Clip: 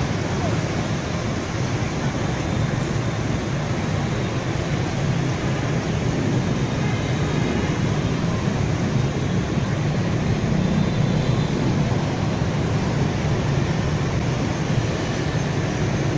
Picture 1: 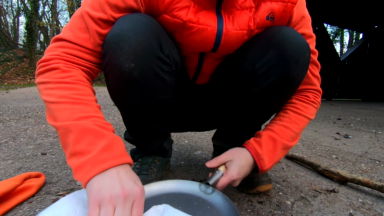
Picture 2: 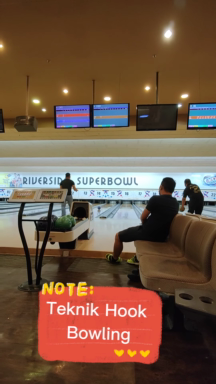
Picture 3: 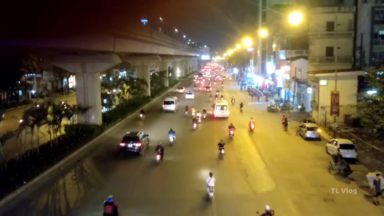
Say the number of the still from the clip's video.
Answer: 3